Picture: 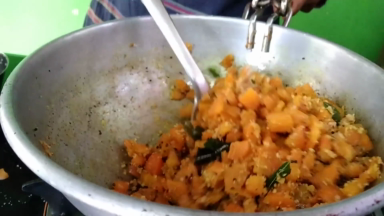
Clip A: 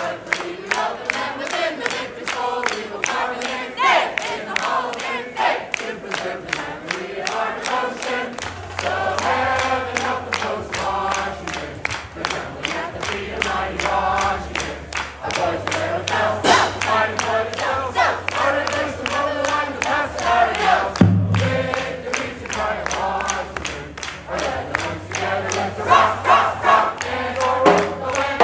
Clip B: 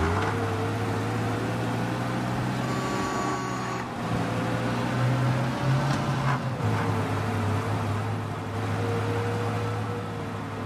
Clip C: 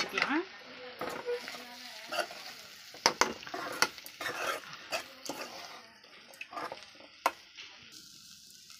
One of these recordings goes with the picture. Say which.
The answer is C